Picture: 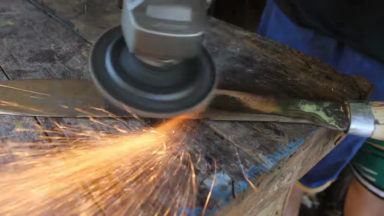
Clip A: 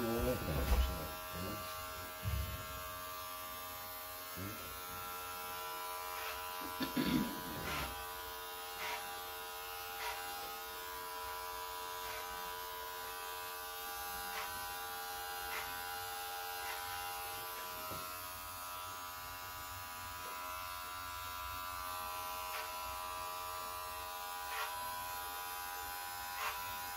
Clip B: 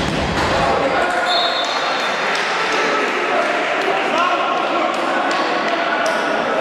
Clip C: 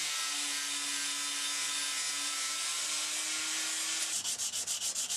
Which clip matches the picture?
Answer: C